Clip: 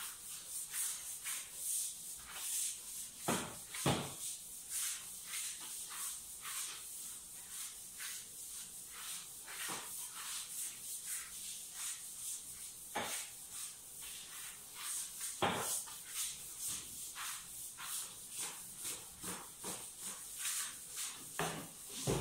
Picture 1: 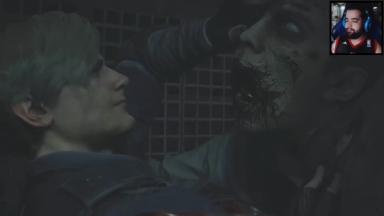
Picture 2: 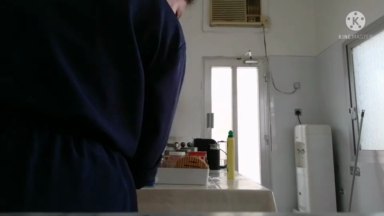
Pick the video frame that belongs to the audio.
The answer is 2